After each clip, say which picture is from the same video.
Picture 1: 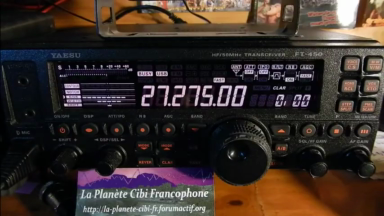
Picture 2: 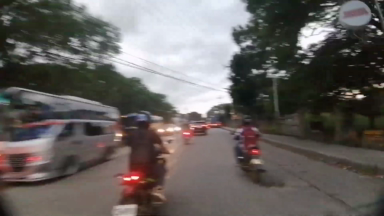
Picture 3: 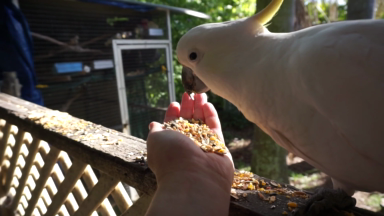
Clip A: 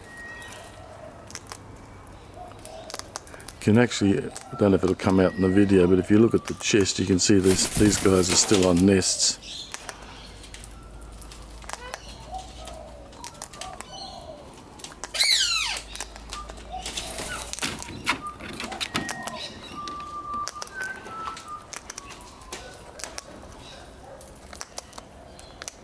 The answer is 3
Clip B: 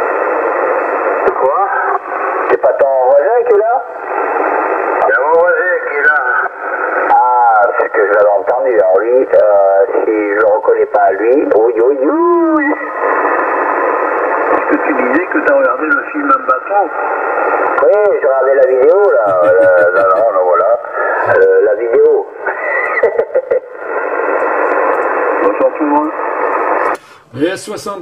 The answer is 1